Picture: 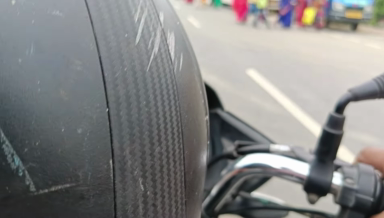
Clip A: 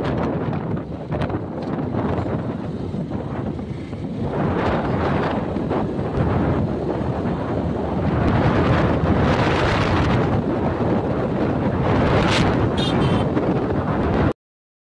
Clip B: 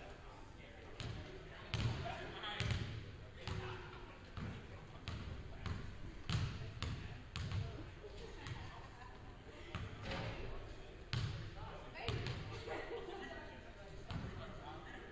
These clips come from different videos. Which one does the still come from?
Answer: A